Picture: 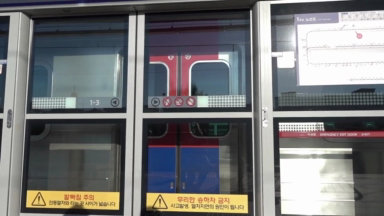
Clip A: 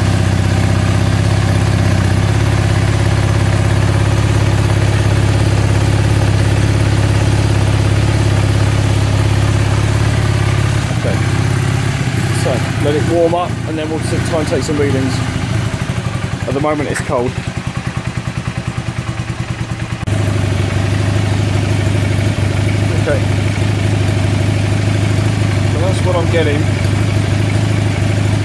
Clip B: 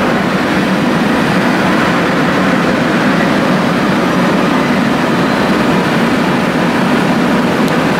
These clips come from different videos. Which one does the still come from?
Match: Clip B